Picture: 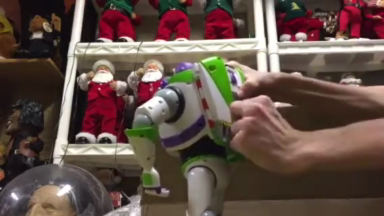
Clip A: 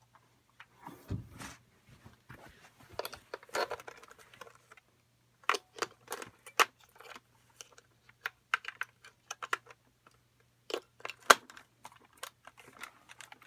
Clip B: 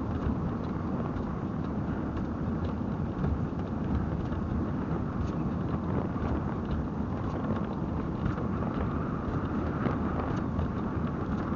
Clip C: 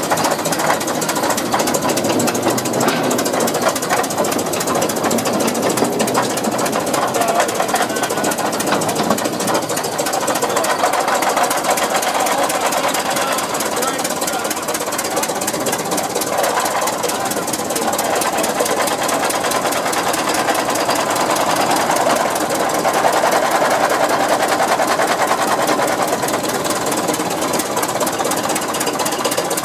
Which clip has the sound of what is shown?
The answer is A